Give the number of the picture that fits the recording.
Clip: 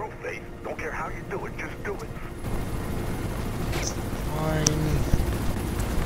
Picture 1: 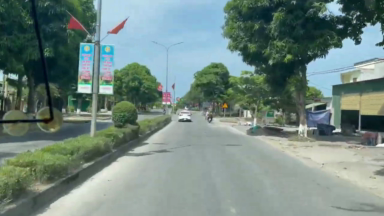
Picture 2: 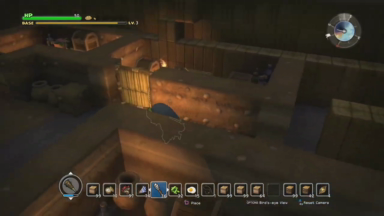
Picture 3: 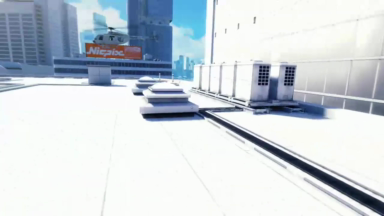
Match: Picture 3